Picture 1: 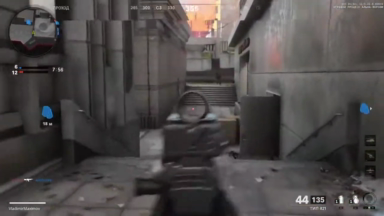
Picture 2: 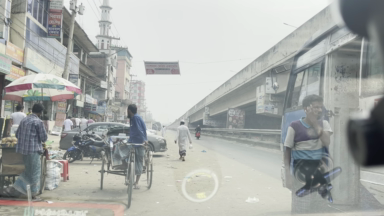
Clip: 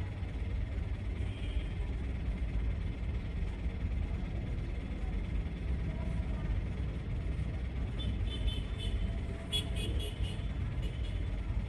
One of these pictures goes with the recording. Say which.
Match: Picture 2